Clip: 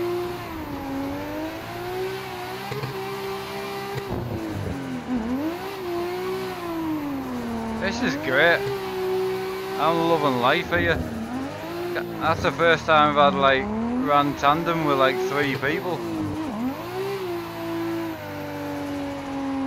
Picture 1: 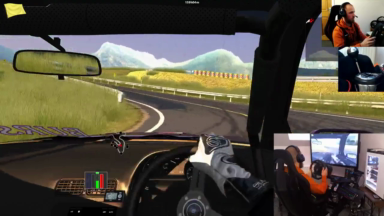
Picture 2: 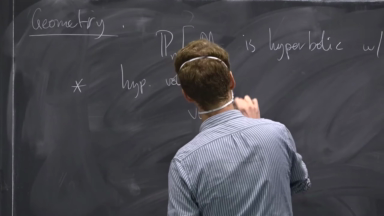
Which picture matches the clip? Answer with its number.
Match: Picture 1